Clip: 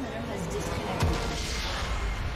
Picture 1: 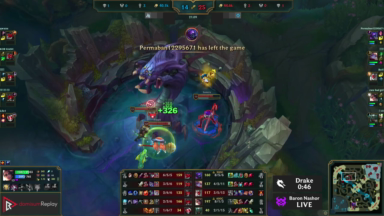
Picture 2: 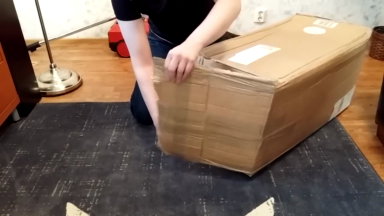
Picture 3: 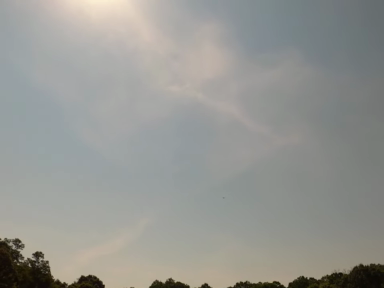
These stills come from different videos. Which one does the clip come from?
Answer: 1